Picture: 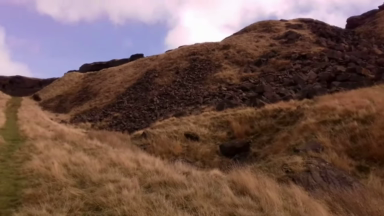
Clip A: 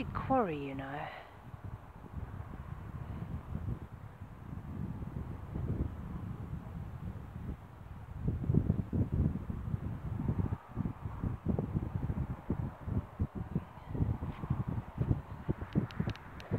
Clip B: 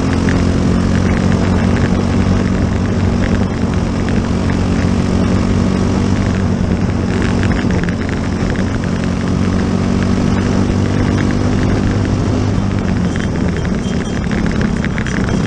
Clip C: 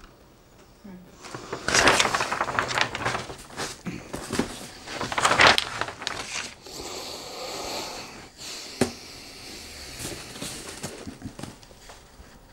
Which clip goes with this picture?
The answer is A